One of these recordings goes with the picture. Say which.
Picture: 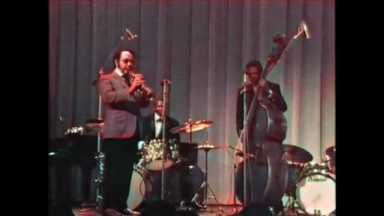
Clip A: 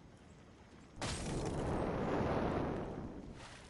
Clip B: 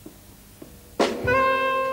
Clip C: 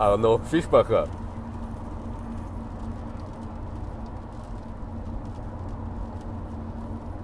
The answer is B